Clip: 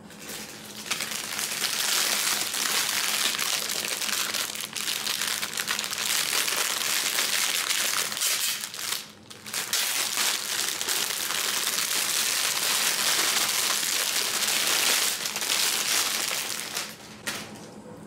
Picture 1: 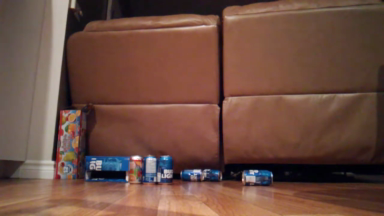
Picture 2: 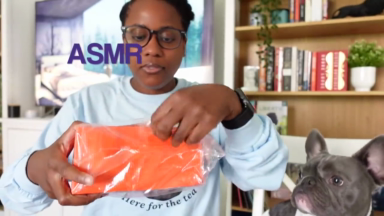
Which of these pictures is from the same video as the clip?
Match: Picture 2